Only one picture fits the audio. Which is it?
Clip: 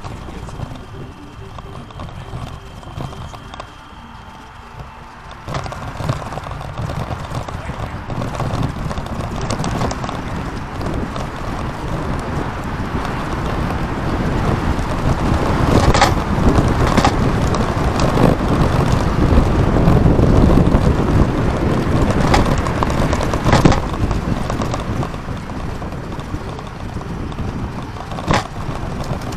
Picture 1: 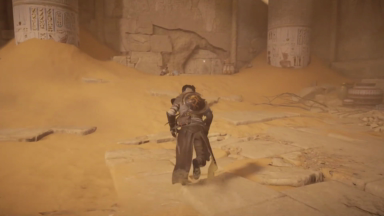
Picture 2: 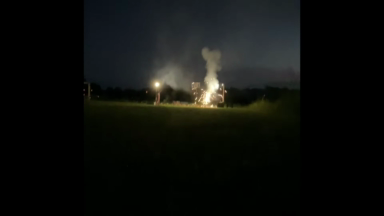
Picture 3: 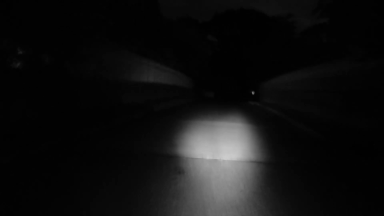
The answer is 3